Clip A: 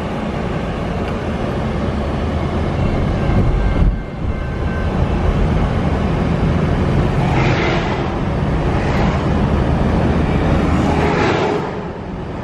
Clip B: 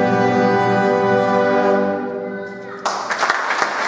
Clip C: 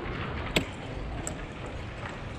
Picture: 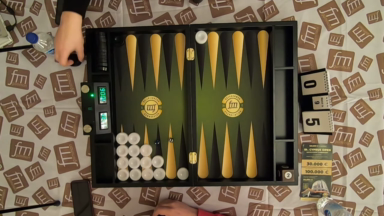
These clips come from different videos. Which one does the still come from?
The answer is C